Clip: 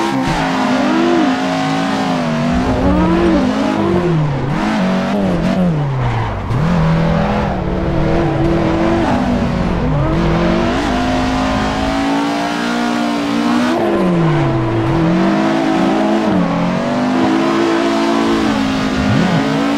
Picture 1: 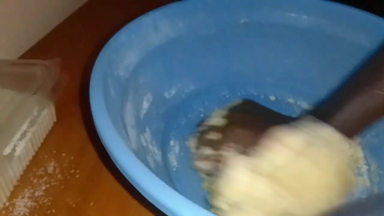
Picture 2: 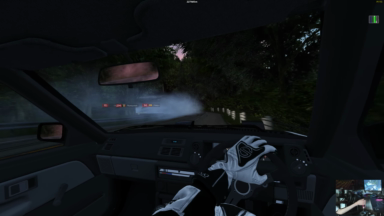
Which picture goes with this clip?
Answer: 2